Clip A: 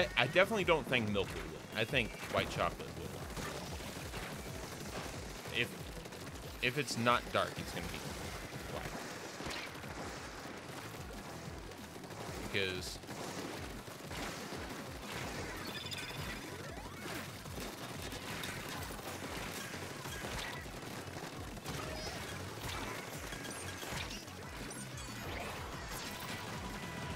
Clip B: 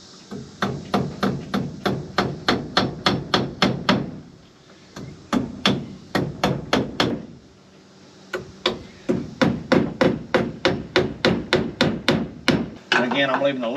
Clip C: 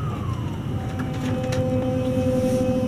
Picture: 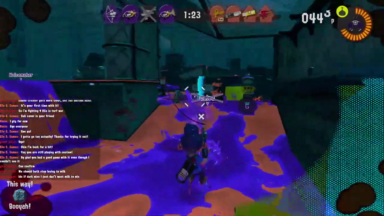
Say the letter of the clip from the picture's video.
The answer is A